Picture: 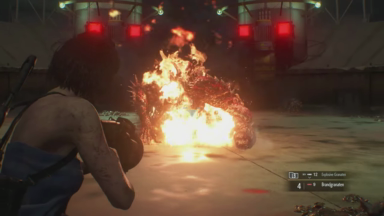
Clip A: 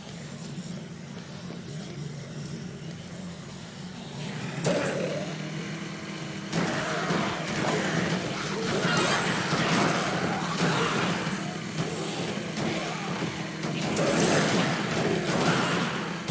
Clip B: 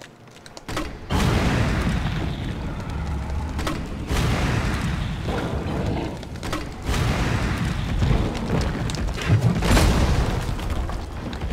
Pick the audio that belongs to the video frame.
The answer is B